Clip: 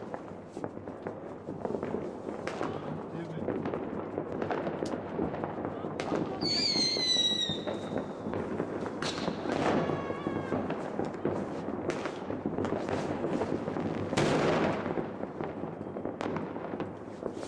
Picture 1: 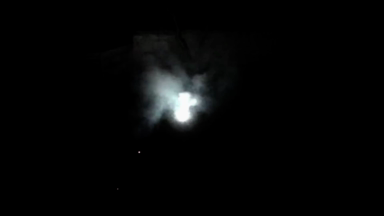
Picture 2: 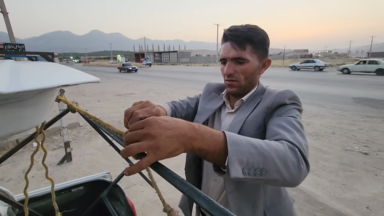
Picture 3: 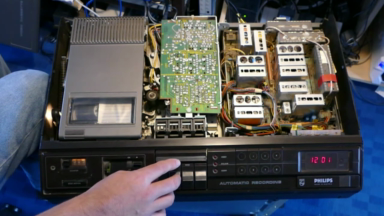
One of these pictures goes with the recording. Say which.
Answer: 1